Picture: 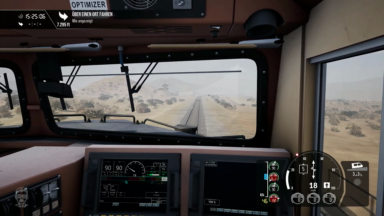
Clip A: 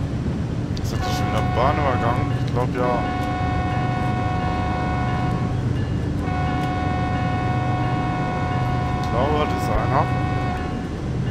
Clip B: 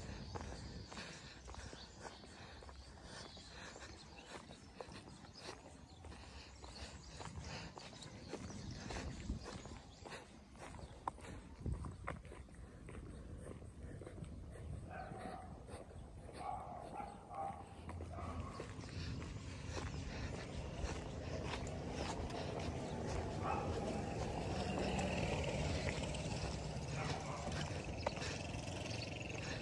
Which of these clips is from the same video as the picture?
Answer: A